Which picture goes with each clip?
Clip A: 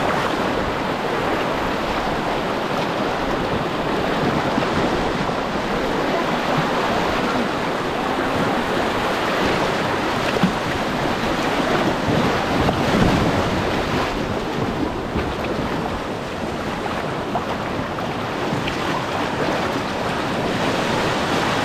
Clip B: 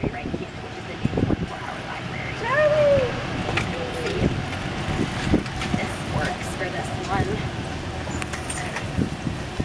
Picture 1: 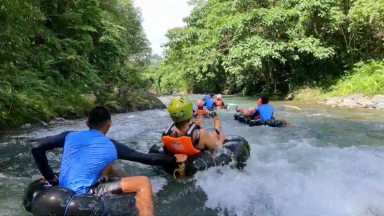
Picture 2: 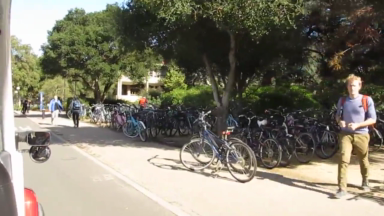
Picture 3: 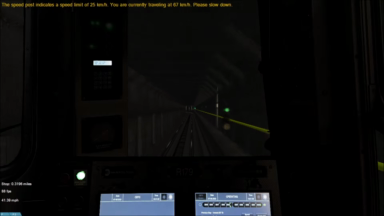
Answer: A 1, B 2